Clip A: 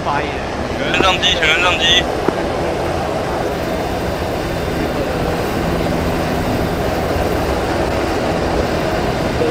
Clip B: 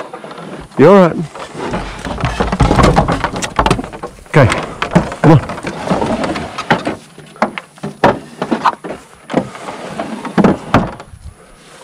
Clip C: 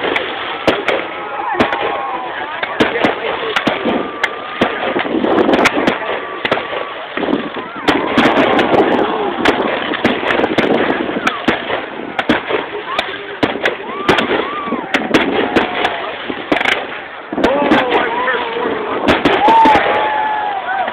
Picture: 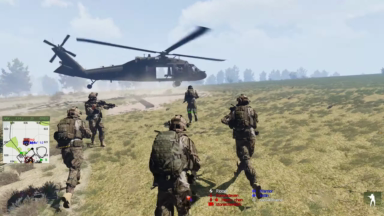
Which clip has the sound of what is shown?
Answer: A